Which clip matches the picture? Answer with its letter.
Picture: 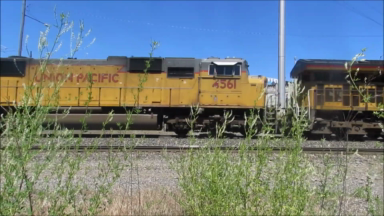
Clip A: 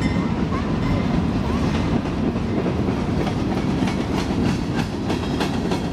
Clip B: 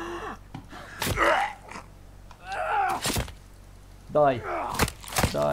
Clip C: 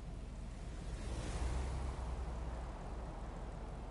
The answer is A